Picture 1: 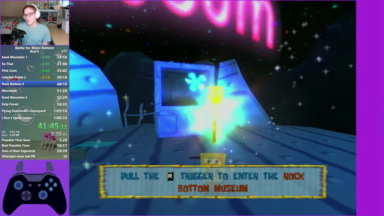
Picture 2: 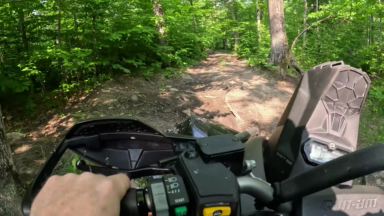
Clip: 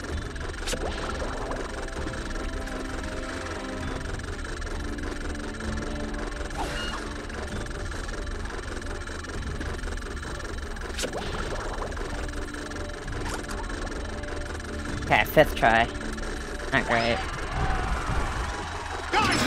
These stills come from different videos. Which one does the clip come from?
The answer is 1